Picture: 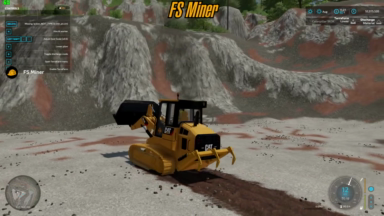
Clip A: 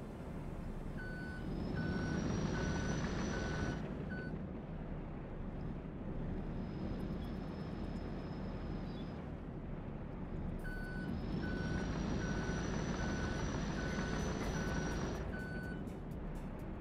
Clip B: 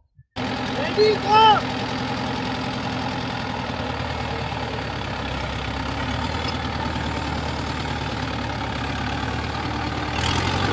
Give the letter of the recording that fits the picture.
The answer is A